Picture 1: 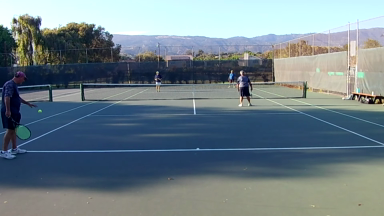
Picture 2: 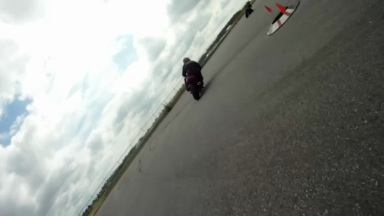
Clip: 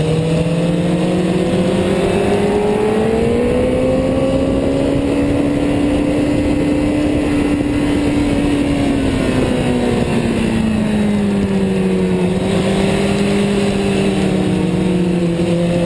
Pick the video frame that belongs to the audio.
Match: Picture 2